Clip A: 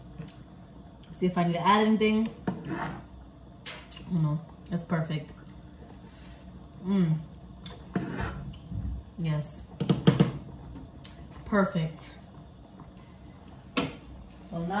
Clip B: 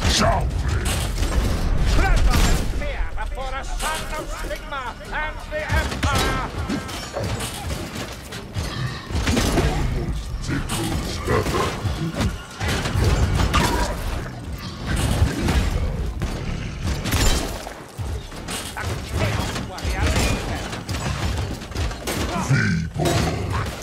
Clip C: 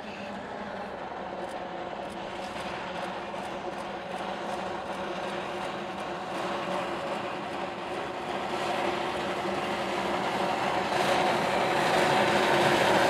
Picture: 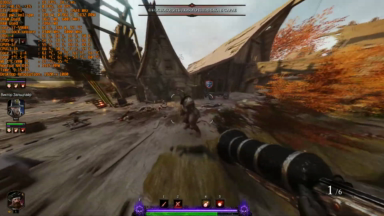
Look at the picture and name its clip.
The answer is B